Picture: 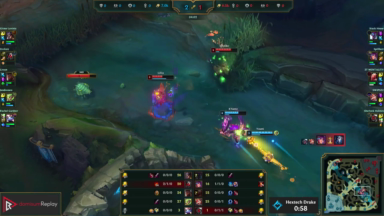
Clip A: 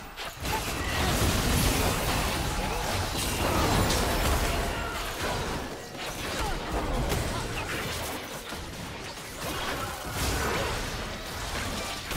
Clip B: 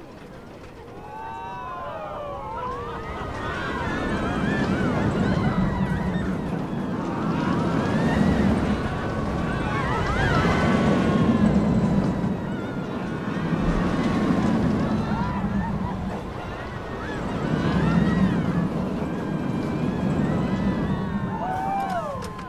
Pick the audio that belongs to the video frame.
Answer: A